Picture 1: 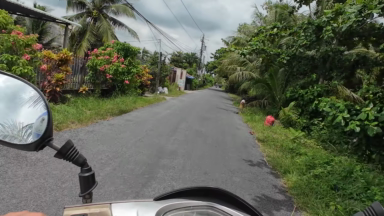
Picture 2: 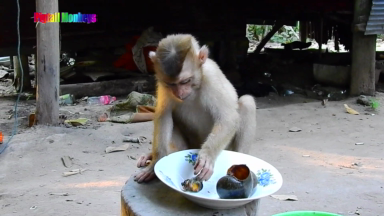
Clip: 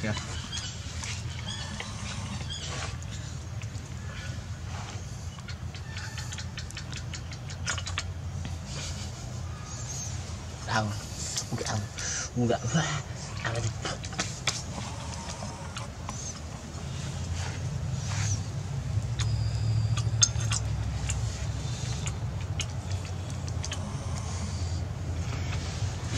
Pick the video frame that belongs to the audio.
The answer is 2